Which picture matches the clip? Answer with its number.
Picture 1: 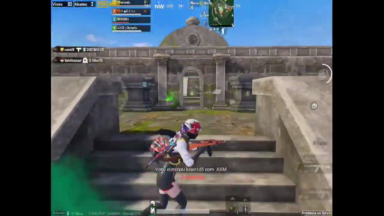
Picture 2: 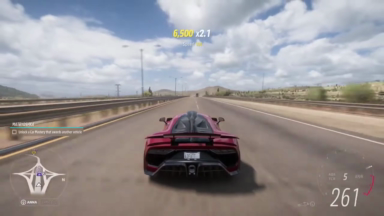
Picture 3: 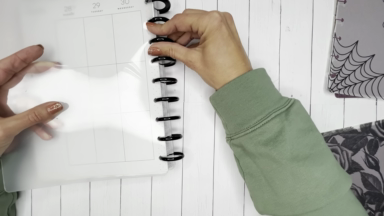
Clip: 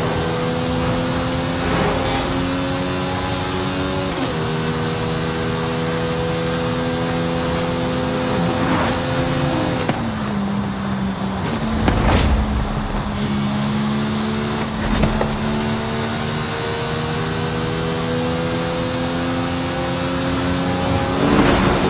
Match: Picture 2